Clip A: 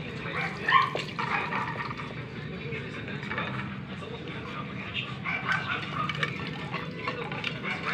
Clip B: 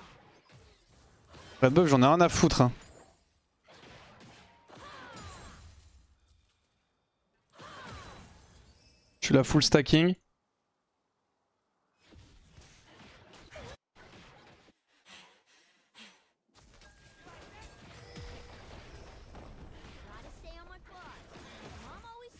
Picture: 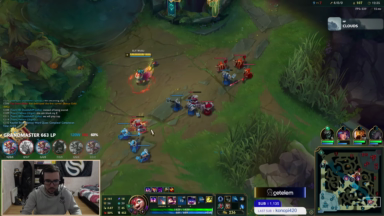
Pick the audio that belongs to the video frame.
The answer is B